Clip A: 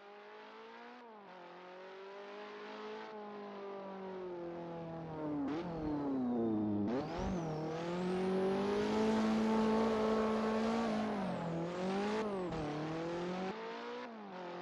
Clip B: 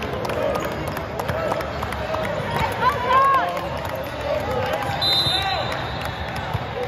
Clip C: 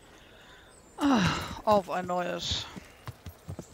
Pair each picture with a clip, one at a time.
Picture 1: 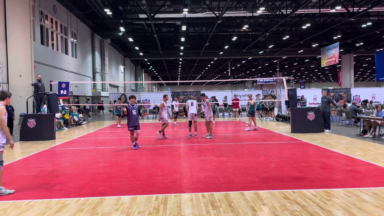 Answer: B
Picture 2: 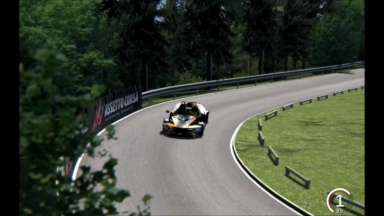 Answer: A